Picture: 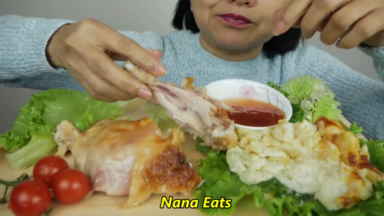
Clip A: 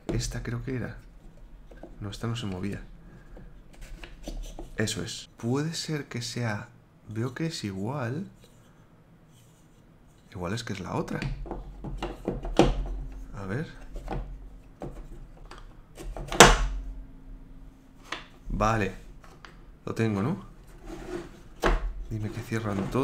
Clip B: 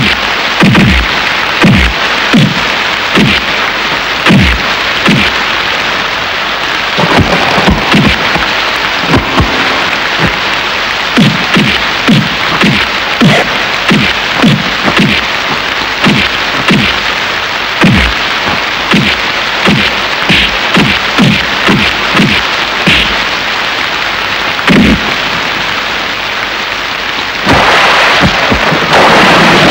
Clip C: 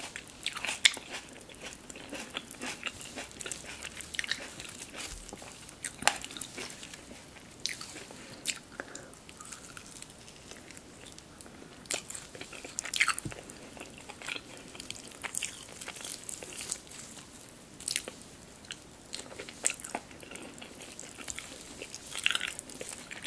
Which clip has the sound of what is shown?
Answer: C